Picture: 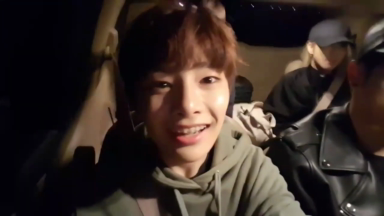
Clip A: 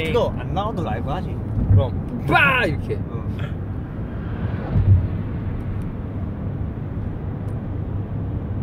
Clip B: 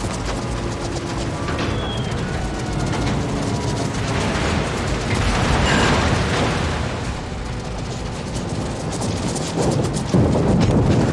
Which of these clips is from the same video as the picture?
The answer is A